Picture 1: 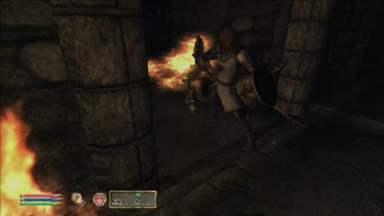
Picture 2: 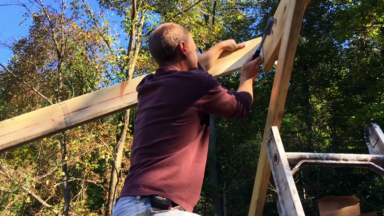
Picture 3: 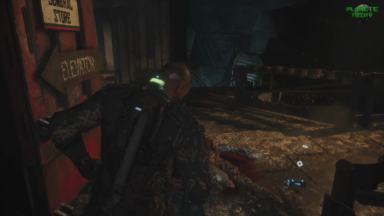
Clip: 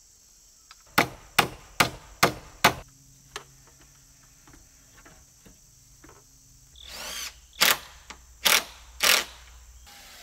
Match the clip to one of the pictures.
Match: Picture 2